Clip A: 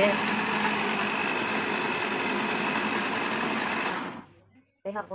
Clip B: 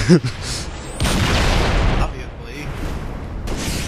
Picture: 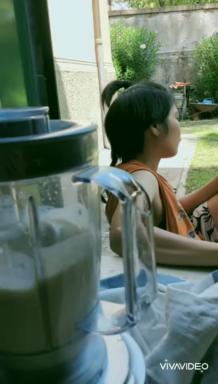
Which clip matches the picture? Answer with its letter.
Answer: A